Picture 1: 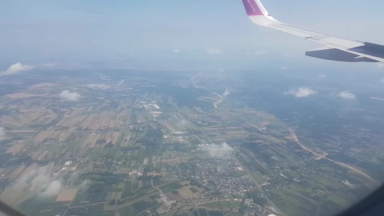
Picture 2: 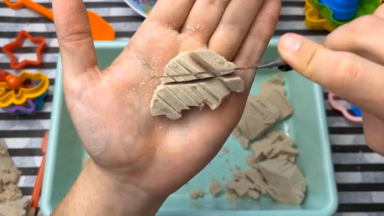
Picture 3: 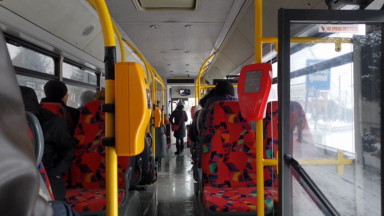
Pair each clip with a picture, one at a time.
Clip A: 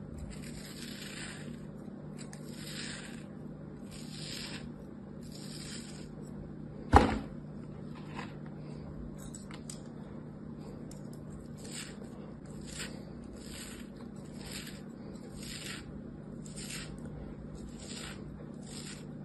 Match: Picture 2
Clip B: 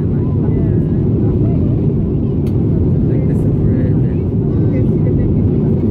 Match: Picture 1